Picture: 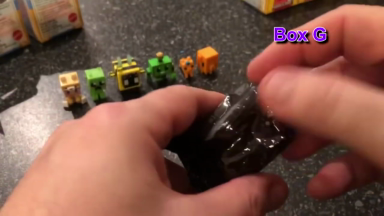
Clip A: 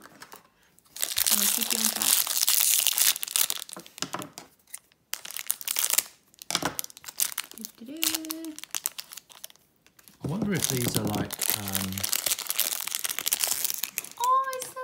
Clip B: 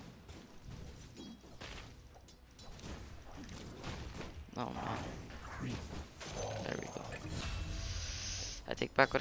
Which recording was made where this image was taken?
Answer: A